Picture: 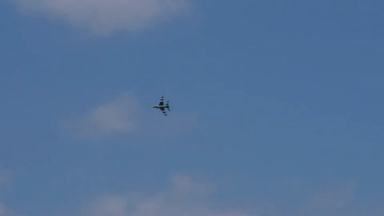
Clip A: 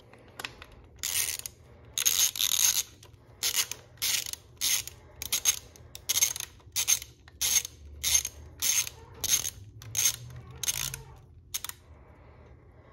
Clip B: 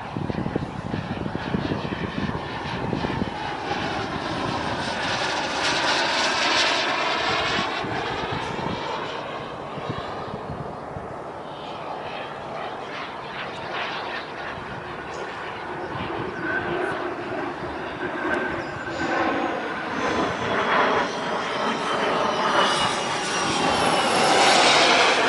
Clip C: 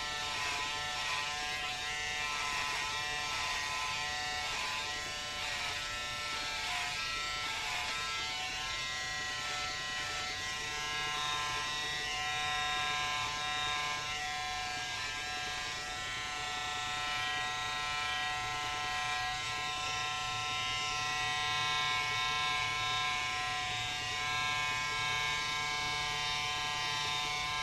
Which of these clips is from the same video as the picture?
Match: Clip B